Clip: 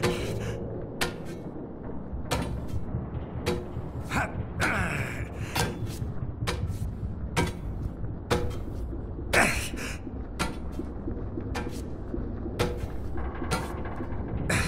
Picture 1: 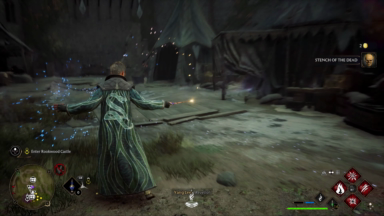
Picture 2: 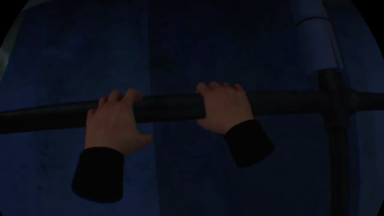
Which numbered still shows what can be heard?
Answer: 2